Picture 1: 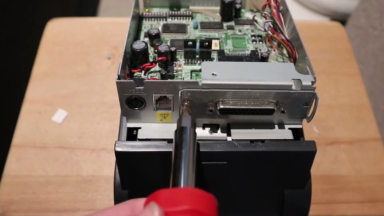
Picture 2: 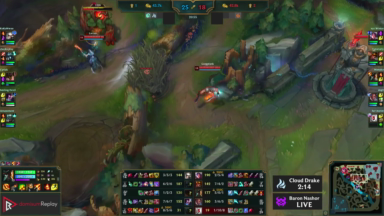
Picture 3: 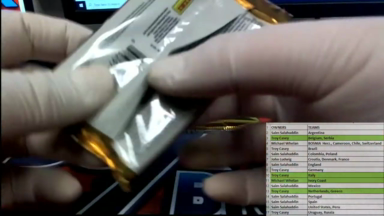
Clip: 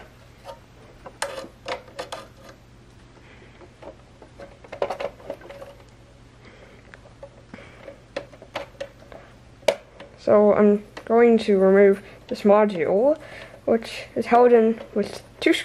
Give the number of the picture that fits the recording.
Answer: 1